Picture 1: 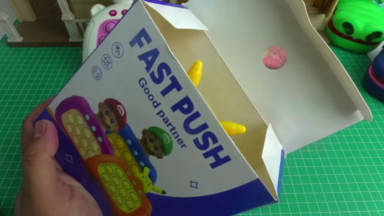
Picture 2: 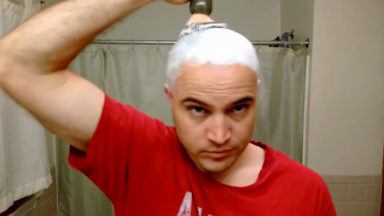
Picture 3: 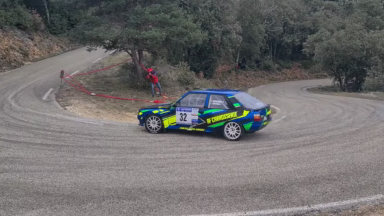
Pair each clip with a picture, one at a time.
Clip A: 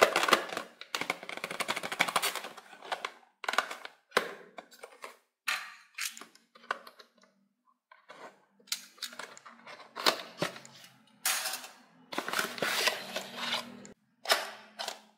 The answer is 1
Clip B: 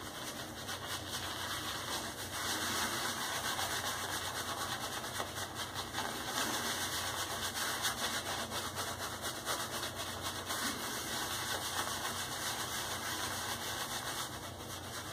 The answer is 2